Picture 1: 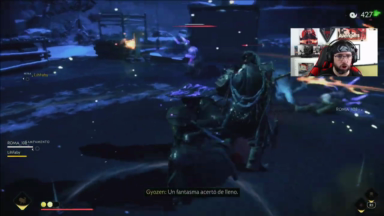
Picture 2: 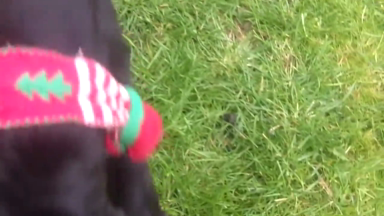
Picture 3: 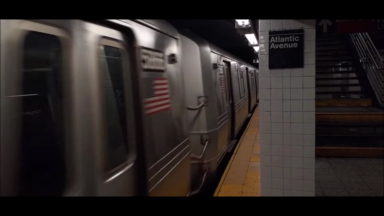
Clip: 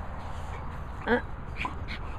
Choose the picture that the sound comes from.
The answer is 2